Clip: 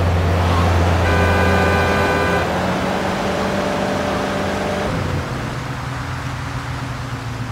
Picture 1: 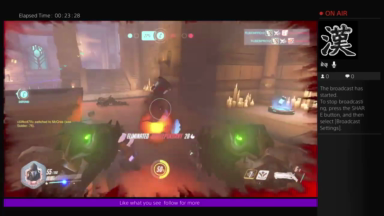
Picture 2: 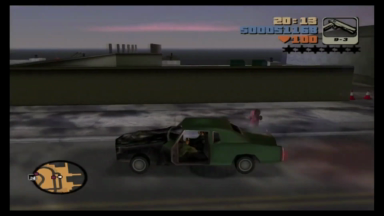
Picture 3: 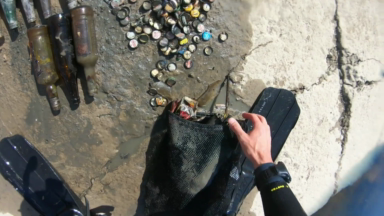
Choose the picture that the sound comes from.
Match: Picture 2